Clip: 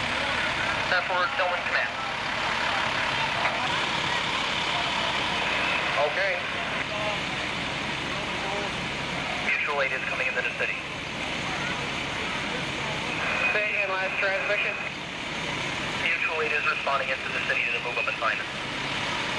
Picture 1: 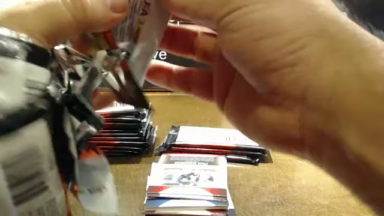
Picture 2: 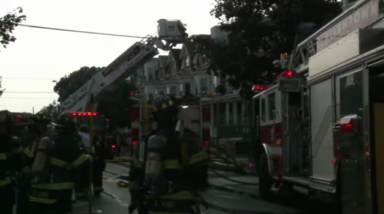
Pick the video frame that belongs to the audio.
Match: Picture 2